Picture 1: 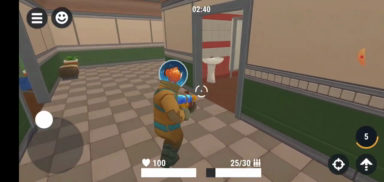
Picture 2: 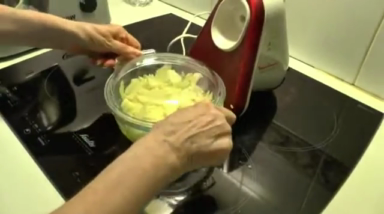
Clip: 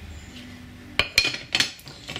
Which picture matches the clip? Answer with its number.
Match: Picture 2